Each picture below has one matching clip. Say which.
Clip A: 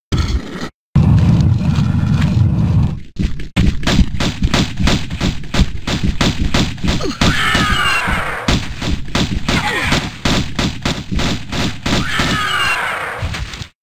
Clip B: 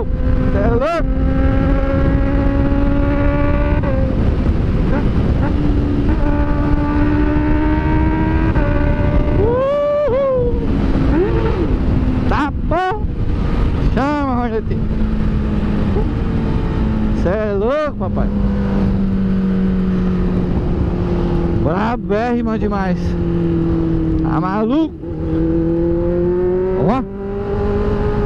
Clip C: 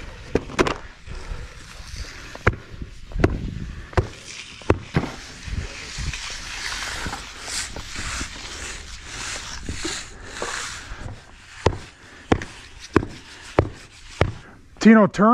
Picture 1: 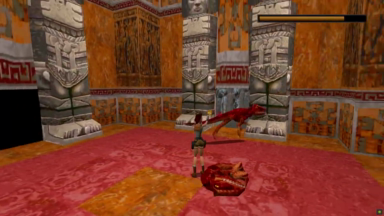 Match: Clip A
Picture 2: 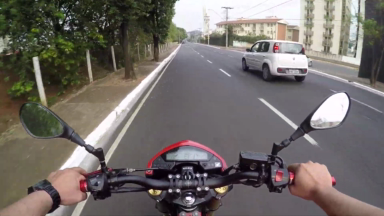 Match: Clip B